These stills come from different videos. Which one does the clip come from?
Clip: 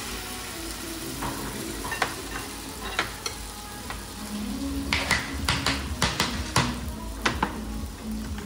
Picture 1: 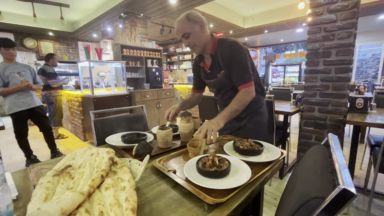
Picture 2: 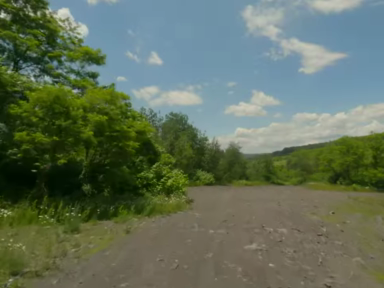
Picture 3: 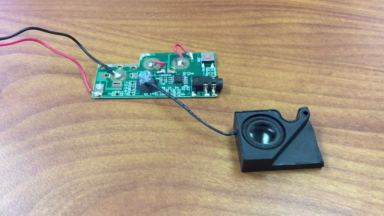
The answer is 1